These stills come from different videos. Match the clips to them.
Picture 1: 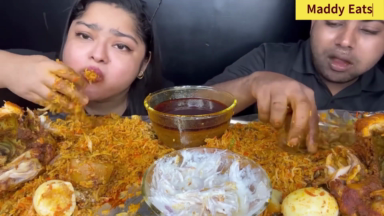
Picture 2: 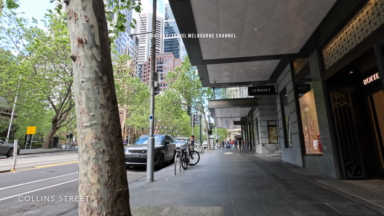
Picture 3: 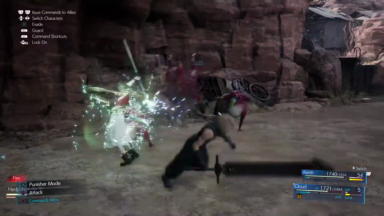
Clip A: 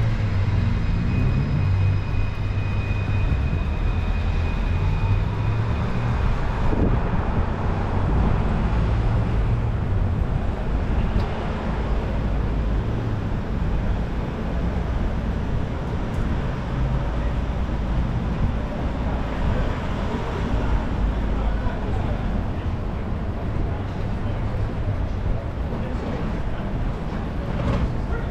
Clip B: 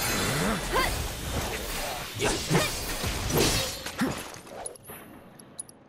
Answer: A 2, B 3